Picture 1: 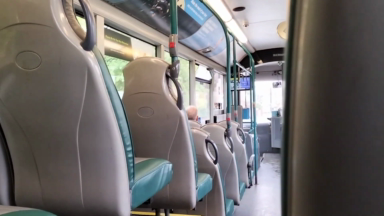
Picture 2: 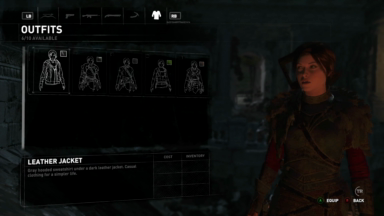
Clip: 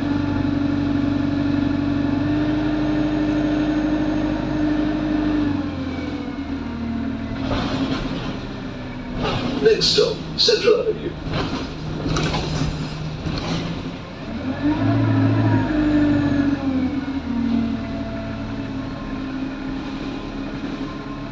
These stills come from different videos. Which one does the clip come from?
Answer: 1